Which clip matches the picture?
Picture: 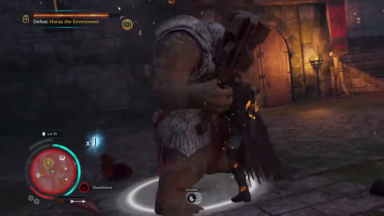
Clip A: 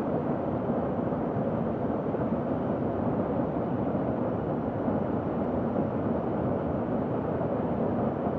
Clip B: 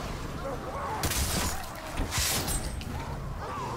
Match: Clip B